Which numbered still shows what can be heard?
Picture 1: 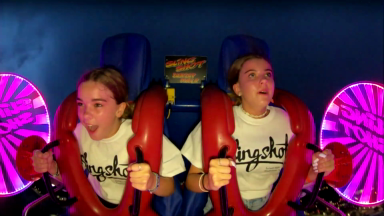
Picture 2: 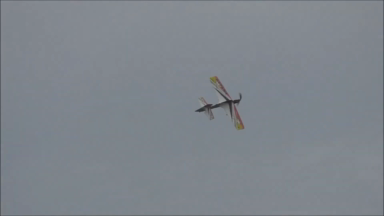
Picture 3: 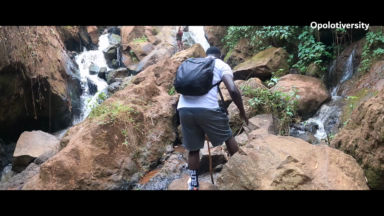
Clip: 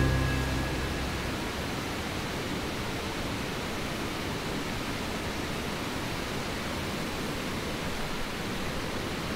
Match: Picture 3